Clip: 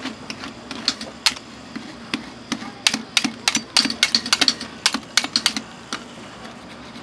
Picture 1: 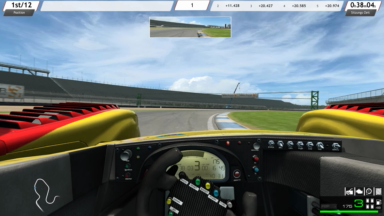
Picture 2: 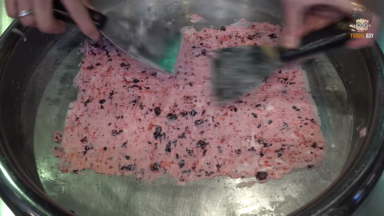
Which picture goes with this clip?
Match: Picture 2